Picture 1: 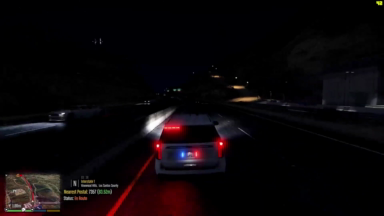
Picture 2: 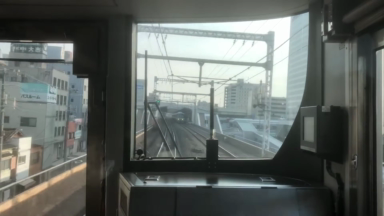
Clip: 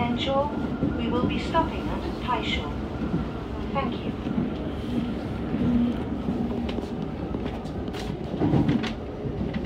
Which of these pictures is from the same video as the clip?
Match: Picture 2